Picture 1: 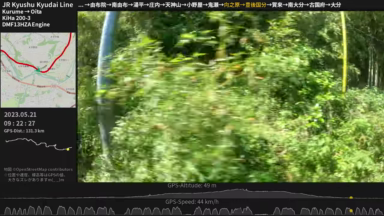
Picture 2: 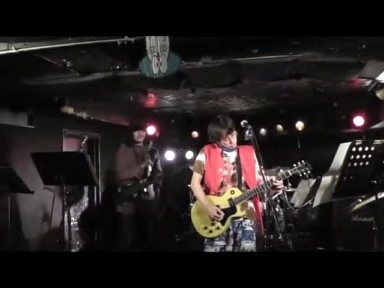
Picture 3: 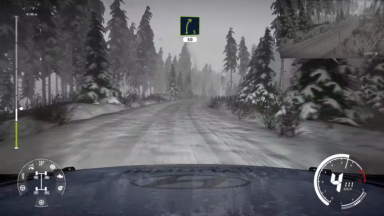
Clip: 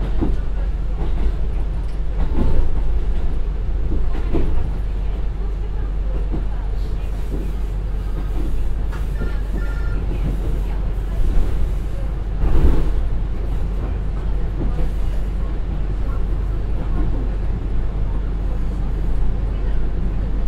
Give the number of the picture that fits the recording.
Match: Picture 1